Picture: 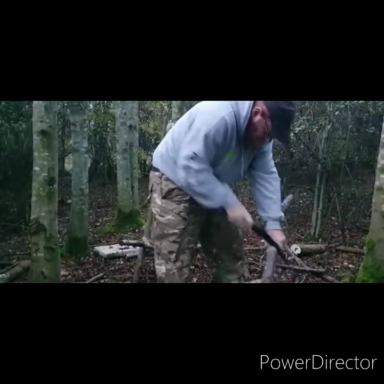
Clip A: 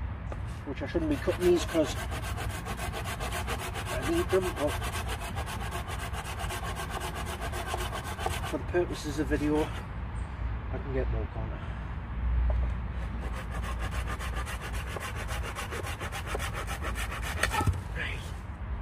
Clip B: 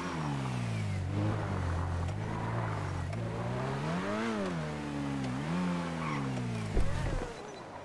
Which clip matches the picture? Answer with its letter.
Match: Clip A